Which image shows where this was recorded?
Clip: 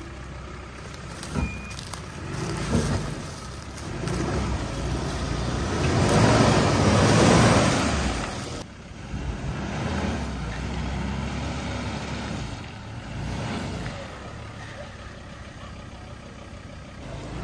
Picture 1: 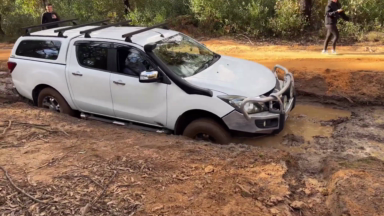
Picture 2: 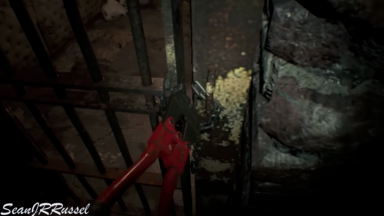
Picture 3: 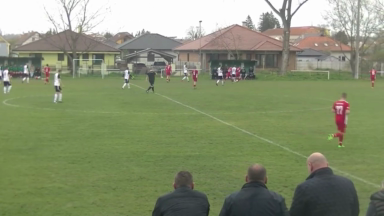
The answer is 1